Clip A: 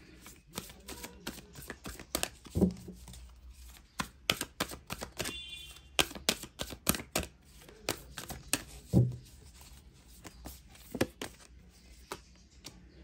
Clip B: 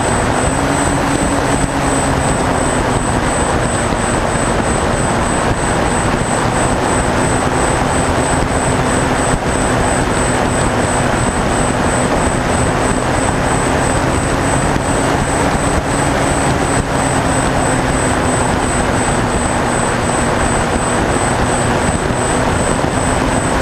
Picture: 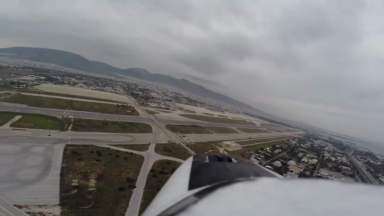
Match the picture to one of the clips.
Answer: B